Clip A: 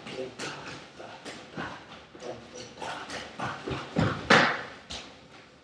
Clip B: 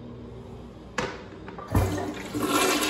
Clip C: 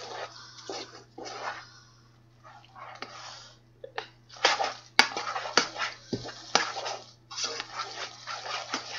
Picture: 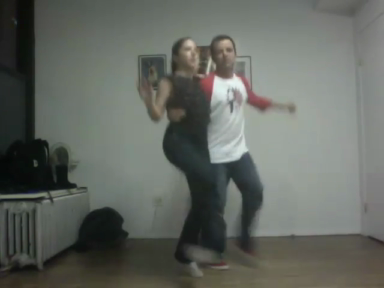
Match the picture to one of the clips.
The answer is A